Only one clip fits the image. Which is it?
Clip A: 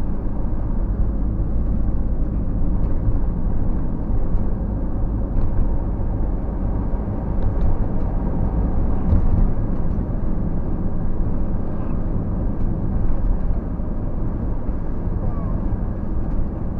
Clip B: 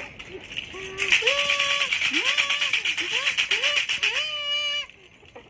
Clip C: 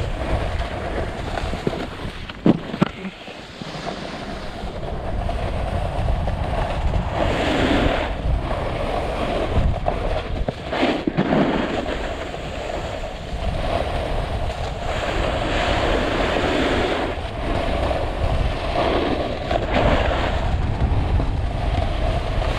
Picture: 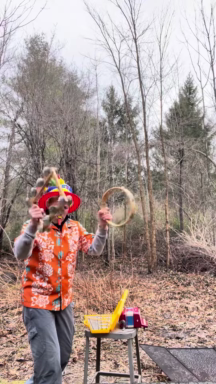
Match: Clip B